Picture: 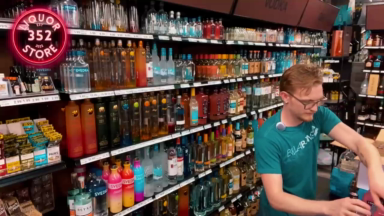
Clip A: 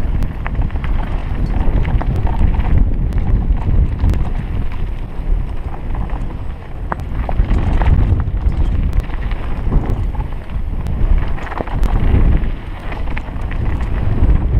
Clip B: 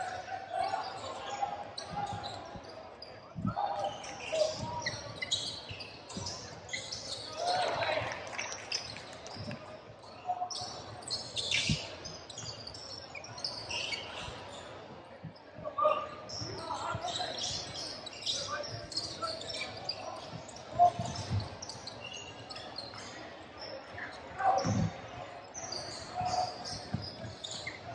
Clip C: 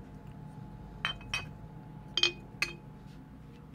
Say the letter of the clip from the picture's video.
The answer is C